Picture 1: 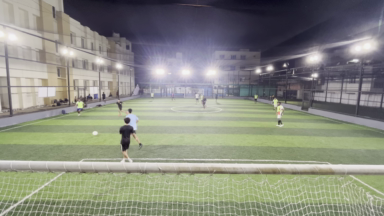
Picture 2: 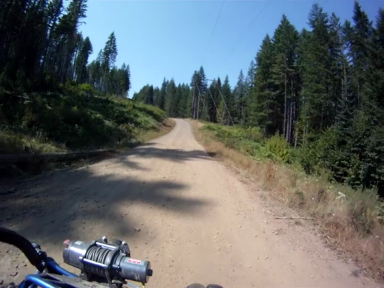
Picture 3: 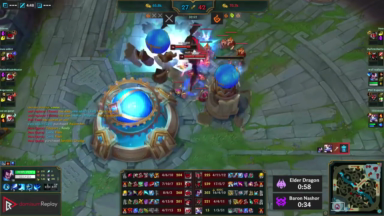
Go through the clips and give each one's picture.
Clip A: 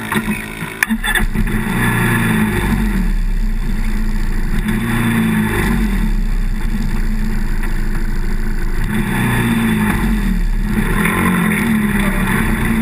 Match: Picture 2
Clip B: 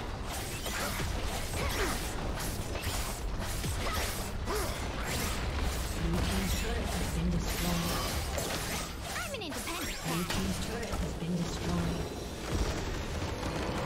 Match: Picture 3